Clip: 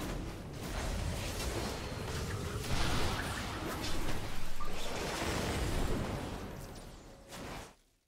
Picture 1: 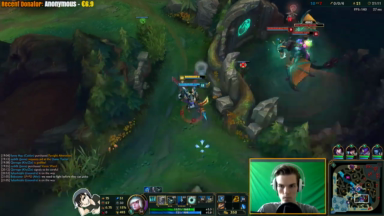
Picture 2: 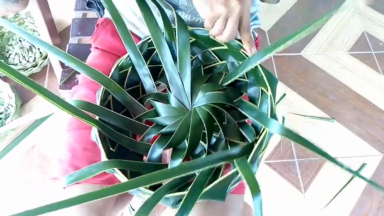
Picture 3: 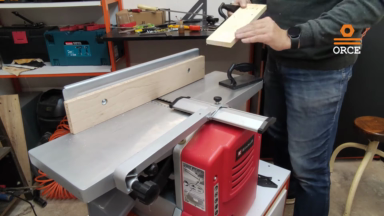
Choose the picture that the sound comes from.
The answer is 1